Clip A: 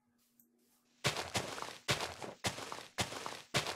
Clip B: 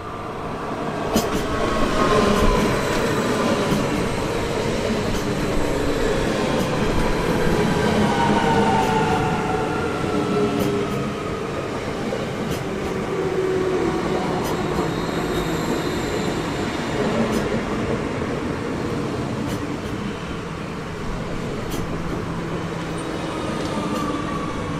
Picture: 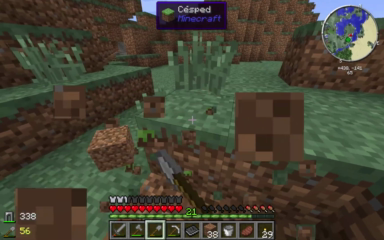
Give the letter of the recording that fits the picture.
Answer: A